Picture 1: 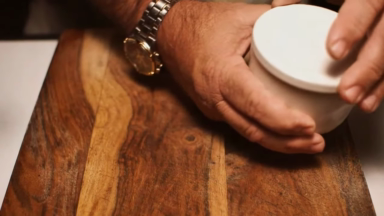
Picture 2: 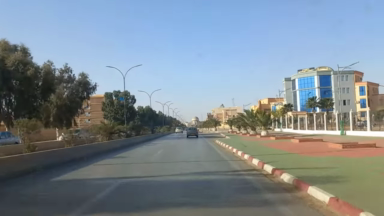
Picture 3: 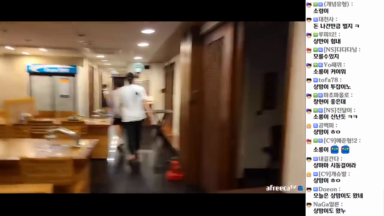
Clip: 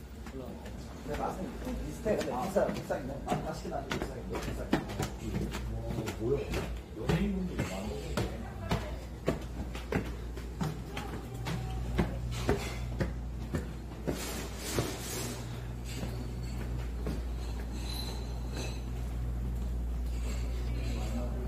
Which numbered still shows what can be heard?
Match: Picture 3